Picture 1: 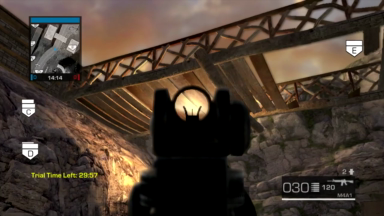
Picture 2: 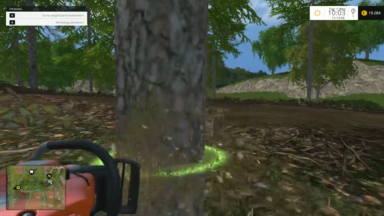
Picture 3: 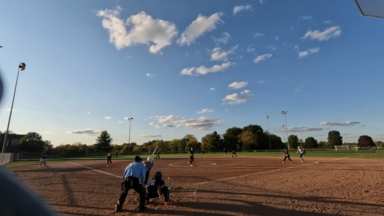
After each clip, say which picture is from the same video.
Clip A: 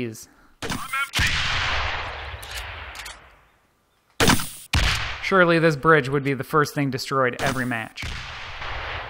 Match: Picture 1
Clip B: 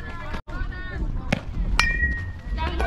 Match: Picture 3